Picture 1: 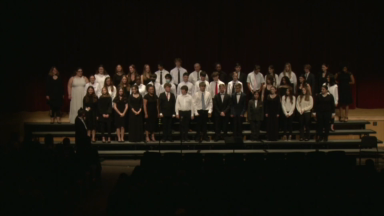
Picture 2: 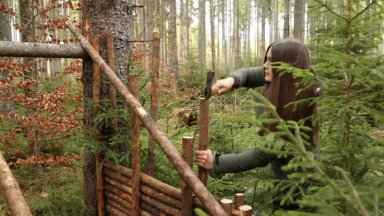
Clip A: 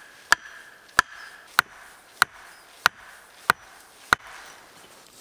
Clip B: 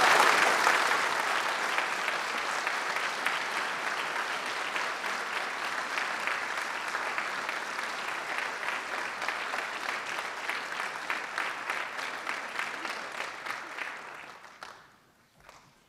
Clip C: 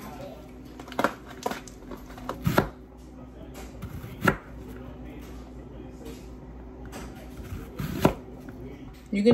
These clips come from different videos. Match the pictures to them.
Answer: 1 B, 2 A